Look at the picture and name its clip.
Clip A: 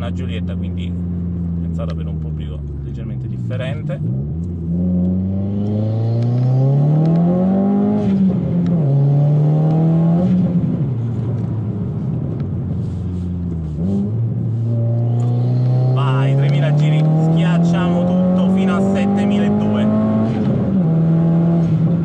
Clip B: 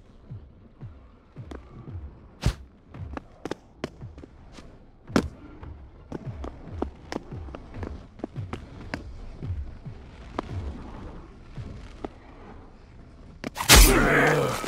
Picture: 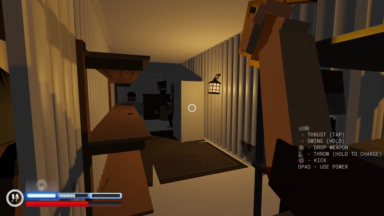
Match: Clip B